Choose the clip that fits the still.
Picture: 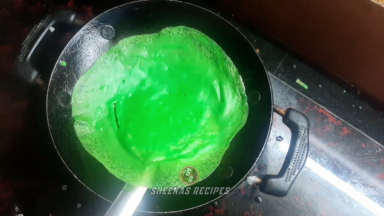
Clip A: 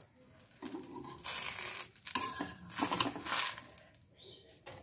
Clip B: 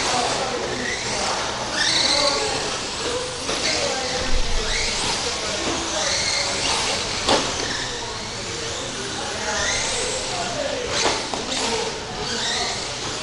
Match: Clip A